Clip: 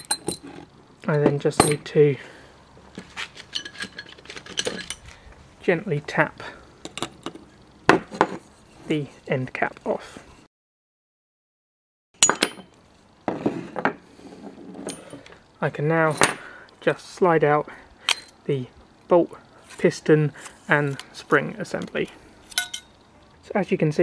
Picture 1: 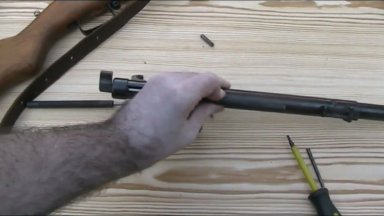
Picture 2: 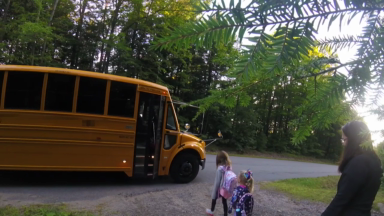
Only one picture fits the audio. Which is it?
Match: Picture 1